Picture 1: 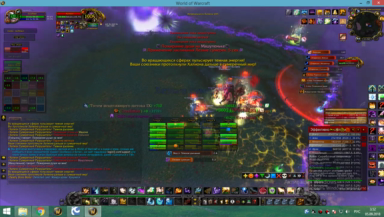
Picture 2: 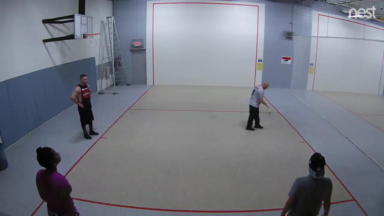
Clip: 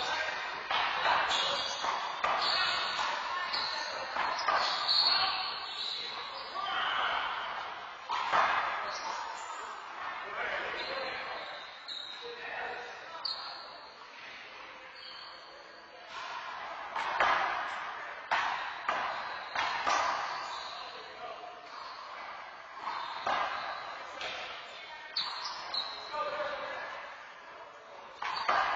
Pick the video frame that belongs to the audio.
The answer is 2